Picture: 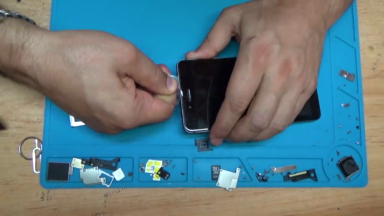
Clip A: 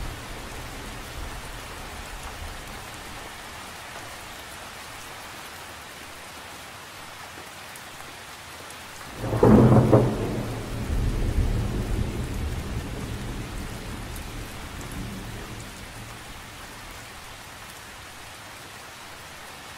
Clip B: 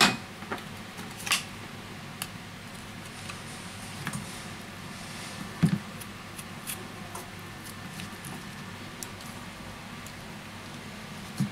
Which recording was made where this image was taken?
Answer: B